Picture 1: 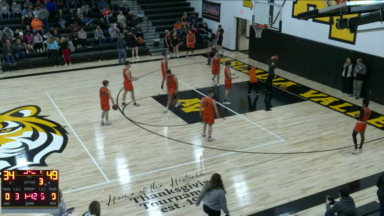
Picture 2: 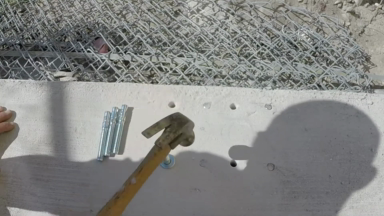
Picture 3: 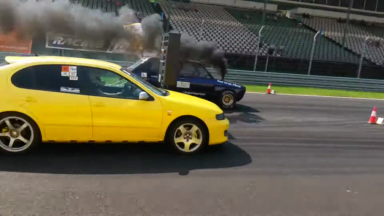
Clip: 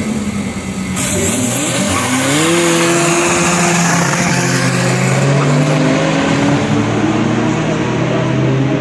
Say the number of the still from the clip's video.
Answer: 3